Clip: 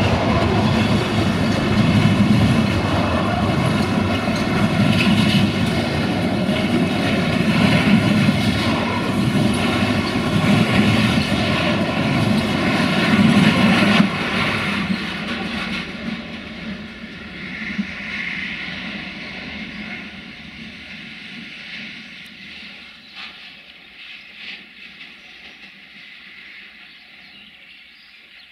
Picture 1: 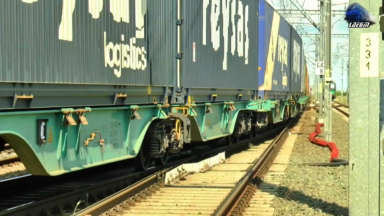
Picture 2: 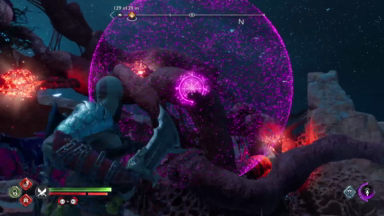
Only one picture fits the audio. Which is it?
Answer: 1